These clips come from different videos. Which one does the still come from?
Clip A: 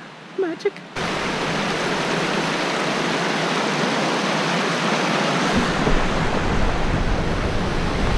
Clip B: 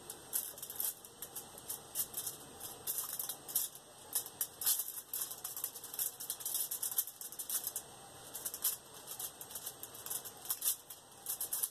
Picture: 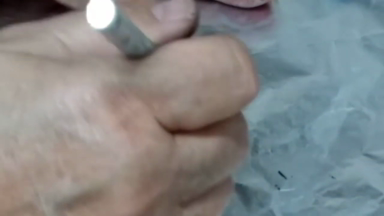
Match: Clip B